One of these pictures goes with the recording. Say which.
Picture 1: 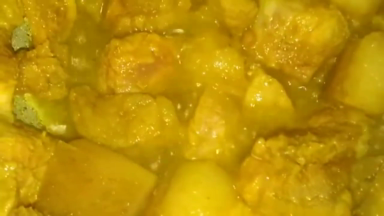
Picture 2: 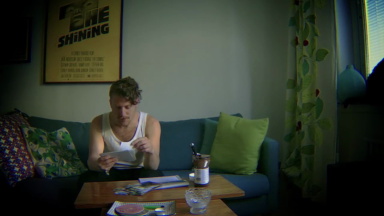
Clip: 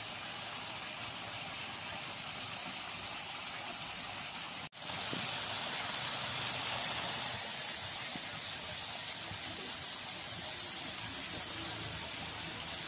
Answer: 1